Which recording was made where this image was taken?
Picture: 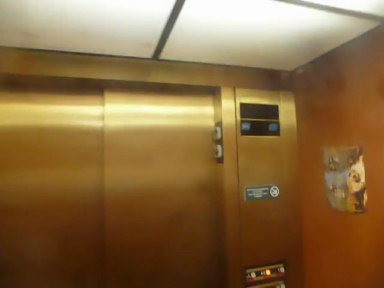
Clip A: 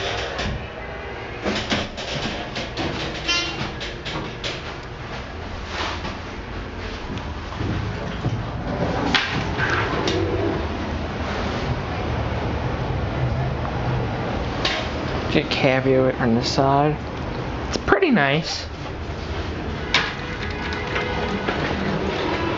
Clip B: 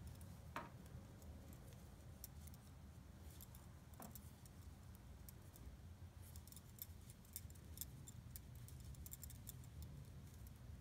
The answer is A